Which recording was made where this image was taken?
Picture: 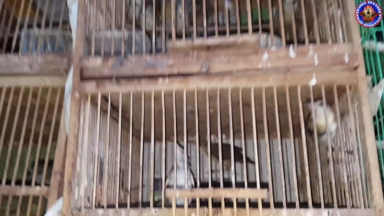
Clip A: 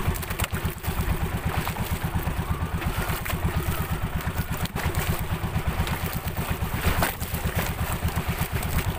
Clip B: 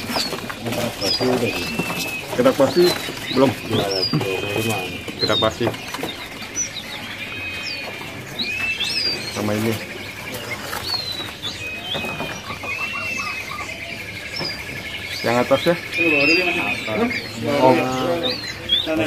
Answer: B